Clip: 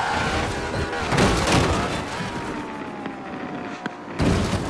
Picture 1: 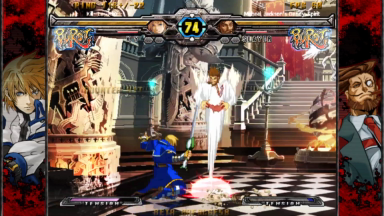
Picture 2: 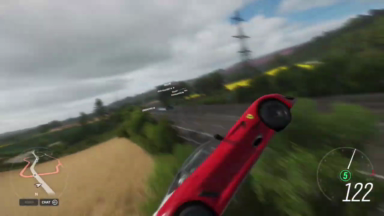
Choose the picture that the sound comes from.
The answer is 2